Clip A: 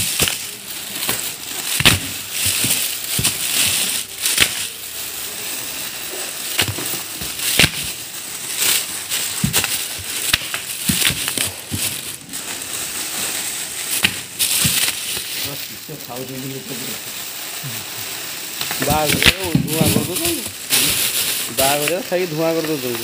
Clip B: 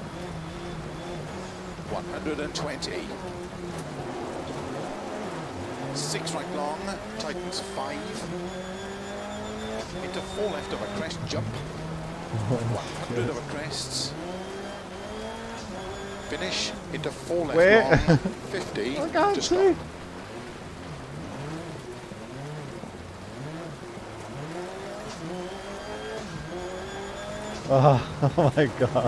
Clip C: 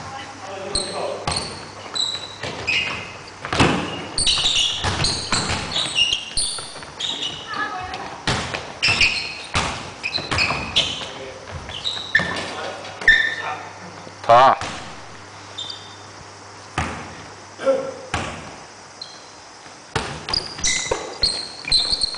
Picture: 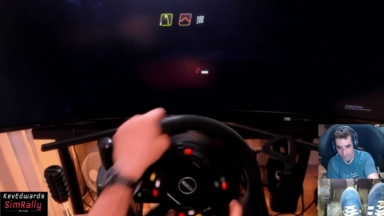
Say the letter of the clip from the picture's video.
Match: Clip B